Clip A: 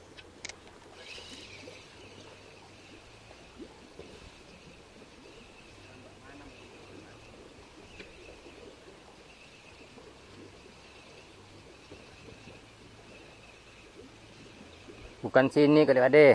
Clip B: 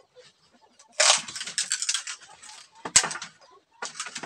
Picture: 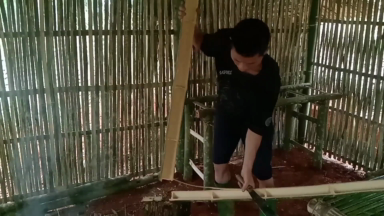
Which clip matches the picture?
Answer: B